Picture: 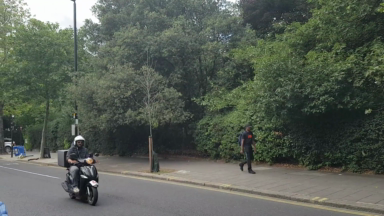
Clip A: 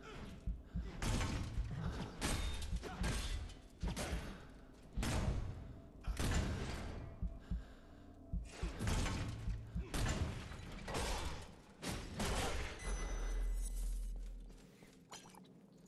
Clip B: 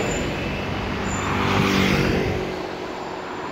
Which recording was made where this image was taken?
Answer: B